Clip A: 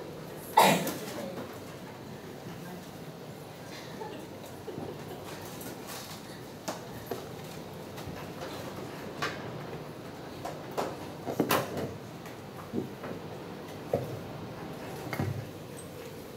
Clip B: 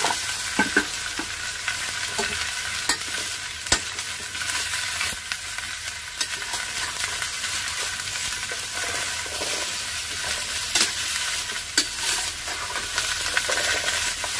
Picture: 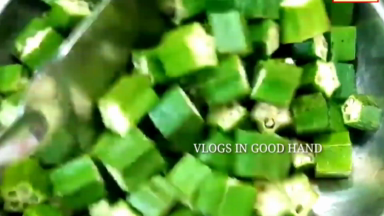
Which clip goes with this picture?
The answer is B